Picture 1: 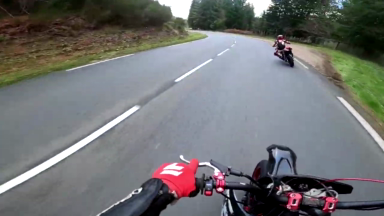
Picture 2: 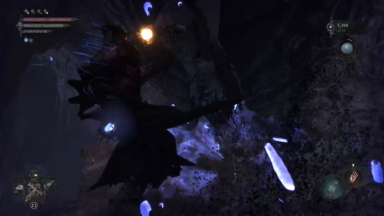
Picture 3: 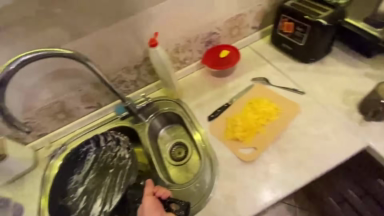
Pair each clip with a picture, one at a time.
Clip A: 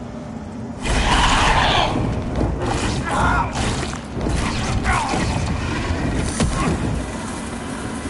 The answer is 2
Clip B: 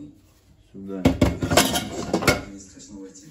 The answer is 3